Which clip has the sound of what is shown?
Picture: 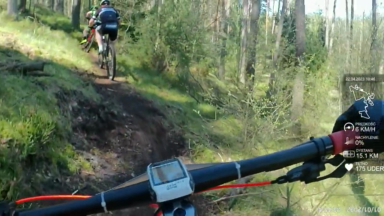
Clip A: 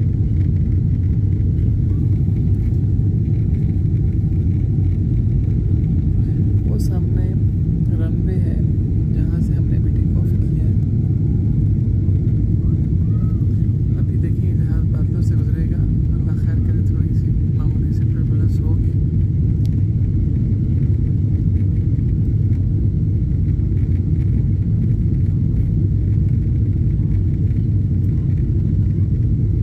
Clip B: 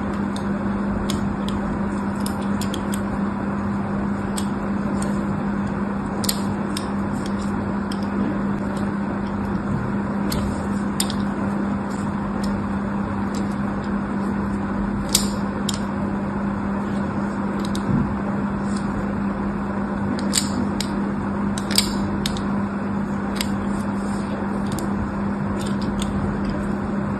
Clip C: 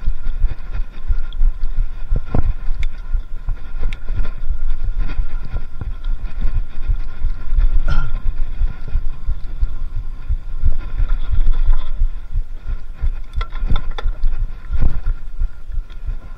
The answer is C